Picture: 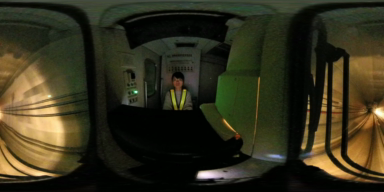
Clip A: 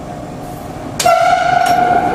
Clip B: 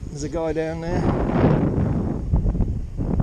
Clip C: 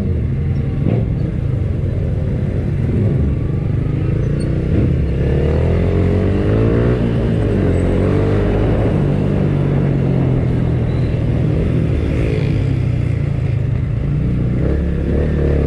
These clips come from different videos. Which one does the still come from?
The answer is A